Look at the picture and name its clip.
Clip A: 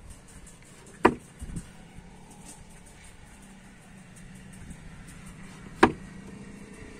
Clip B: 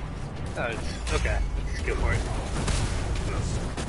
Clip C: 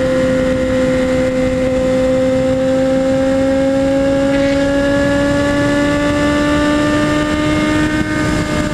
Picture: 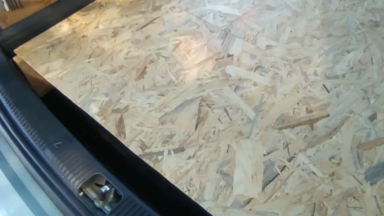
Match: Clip A